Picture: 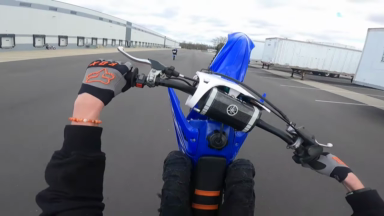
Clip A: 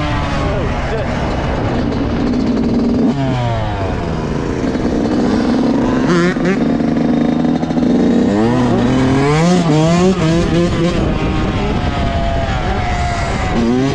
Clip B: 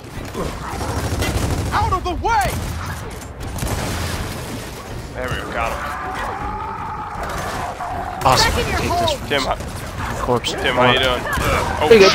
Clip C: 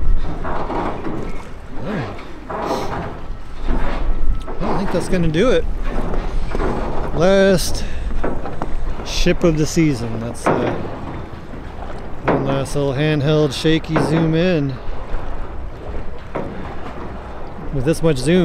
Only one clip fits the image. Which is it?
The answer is A